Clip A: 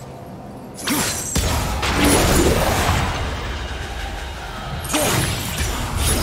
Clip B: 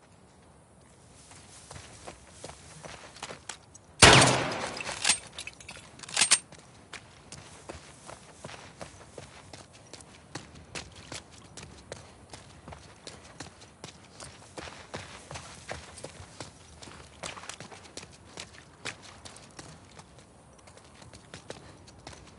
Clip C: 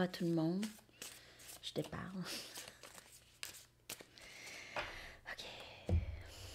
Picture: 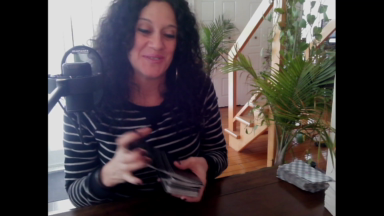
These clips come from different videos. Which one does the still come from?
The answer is C